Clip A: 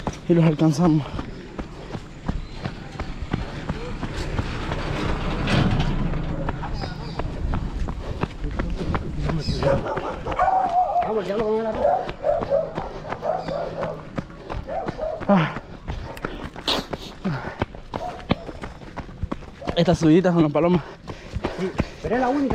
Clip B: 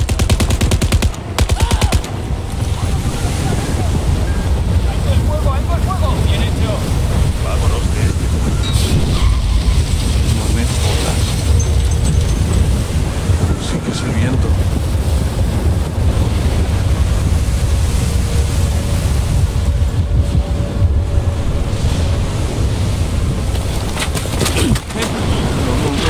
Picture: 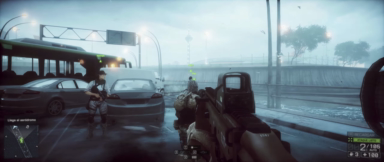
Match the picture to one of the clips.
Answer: B